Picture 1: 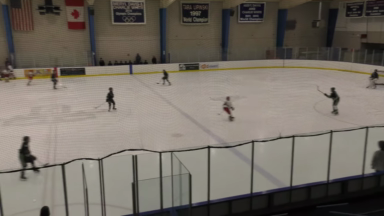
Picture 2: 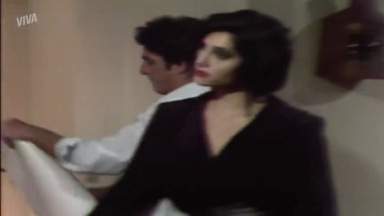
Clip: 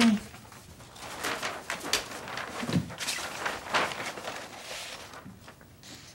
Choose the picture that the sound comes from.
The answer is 2